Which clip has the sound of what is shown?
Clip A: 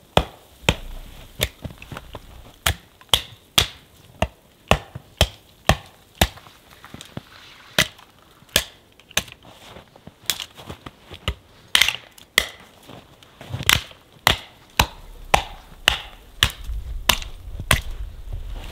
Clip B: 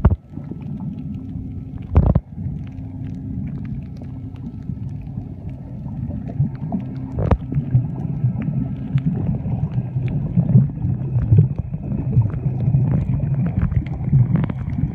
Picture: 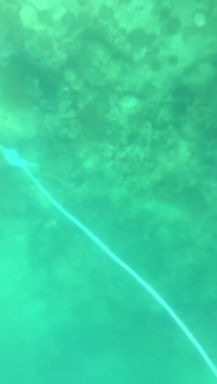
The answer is B